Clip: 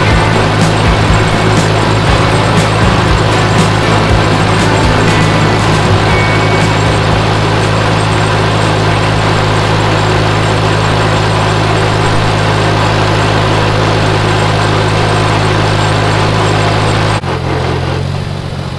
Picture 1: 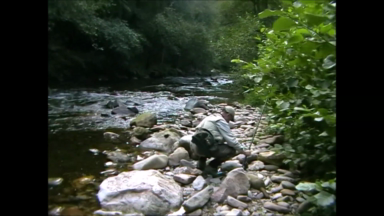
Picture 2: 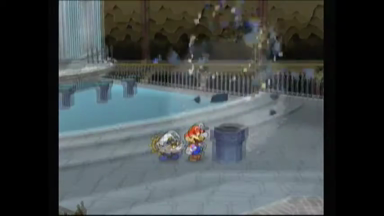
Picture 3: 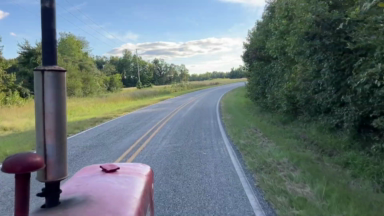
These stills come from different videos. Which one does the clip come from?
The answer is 3